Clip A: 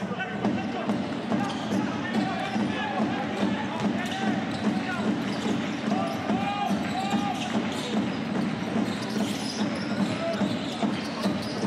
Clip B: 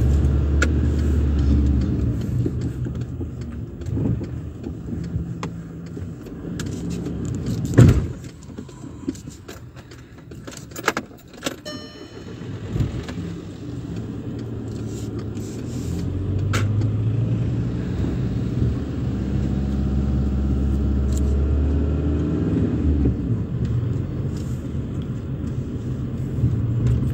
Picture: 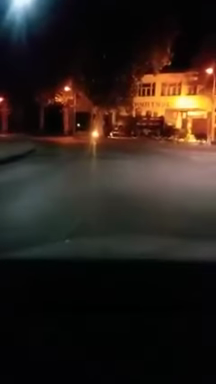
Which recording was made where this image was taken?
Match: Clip B